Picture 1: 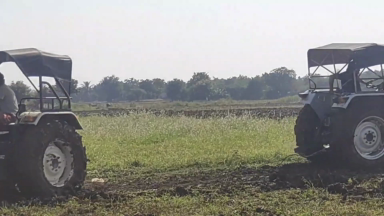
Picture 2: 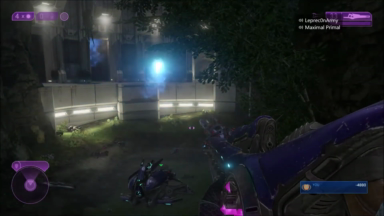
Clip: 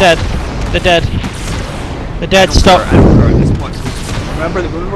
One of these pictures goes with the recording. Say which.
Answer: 2